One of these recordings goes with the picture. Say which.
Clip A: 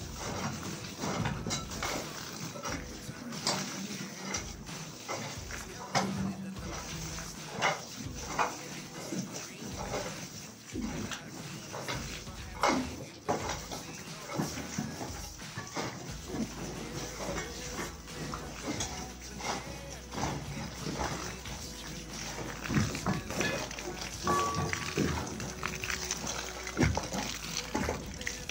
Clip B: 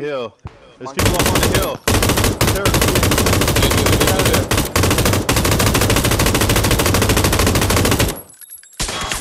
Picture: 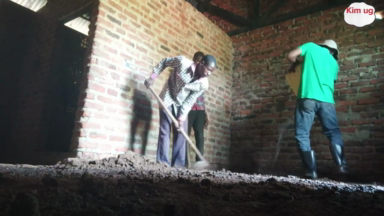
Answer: A